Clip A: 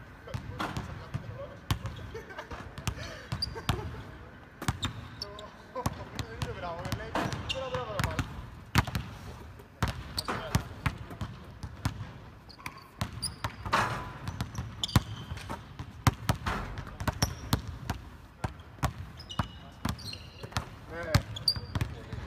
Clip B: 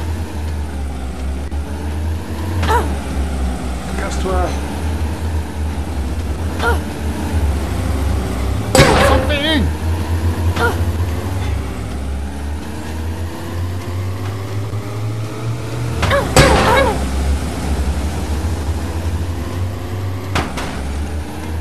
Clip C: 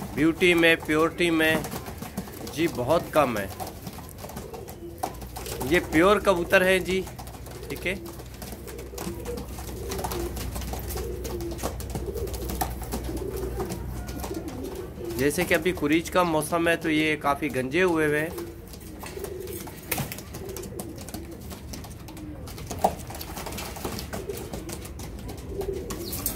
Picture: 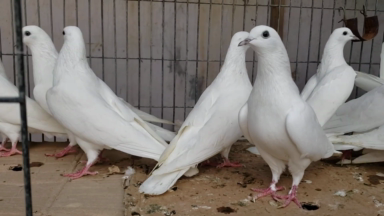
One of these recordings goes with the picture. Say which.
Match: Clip C